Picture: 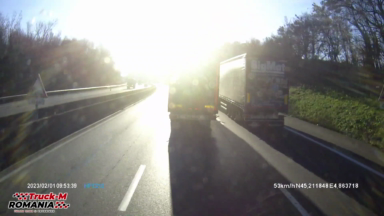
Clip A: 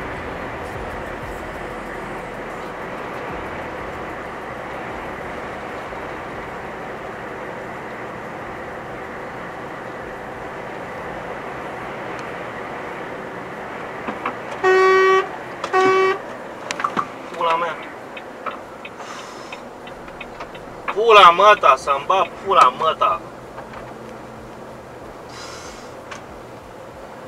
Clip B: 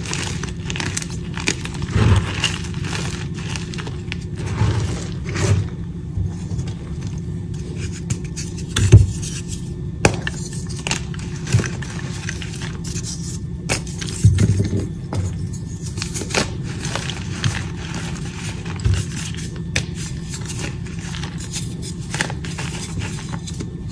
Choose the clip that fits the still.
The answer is A